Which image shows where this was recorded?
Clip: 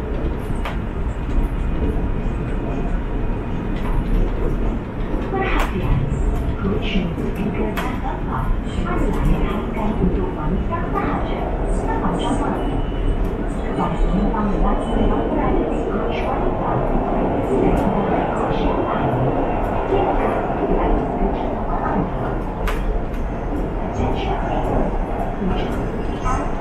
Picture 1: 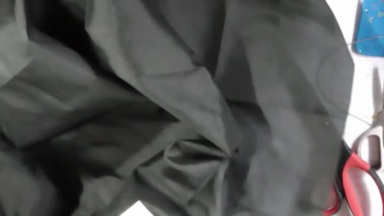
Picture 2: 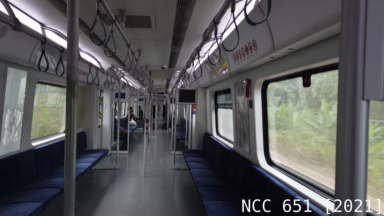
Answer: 2